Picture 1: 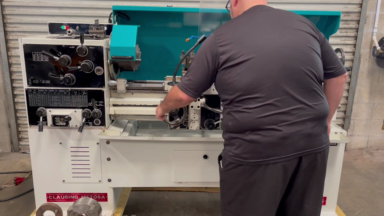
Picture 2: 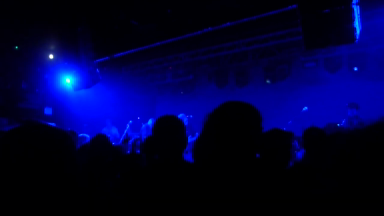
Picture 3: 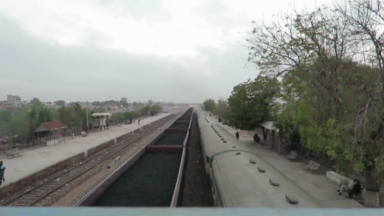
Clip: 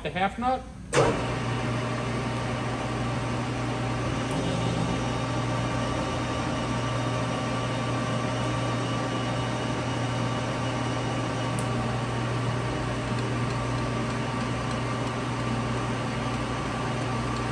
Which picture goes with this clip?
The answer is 1